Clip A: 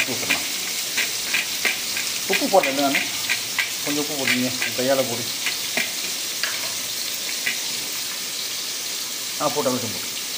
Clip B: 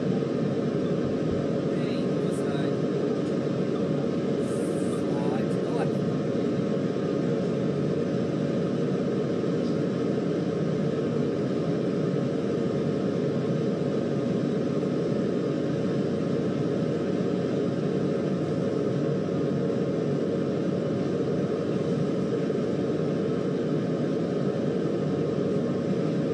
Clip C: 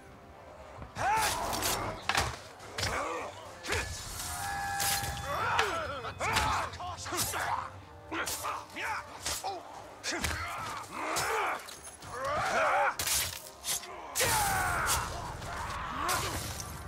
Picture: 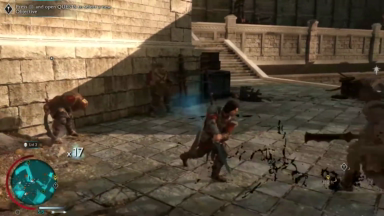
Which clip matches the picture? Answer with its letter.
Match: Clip C